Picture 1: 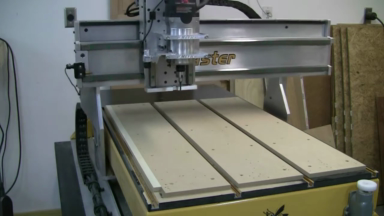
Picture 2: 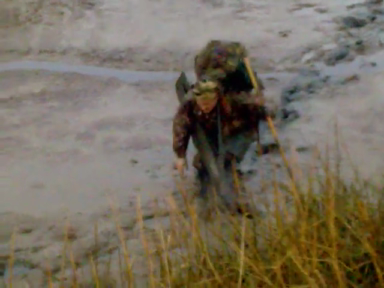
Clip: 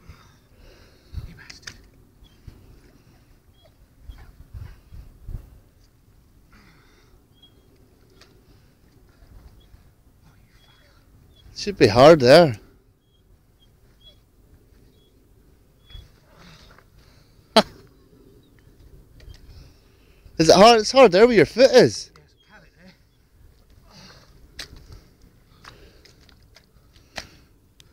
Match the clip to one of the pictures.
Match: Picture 2